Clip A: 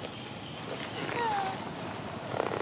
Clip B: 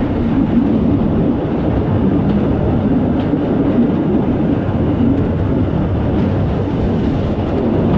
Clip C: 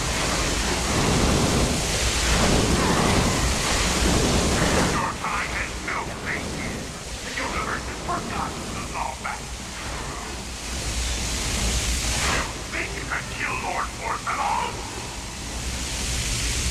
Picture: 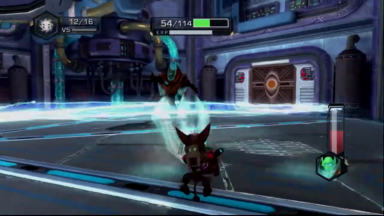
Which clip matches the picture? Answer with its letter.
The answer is C